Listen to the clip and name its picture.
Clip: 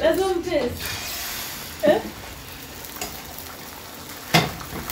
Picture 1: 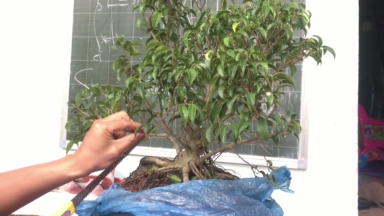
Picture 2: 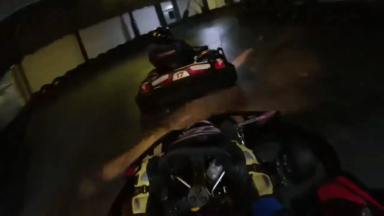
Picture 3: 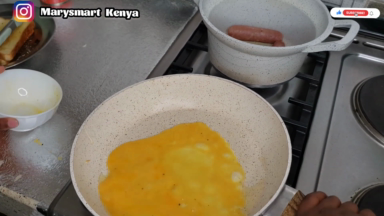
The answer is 3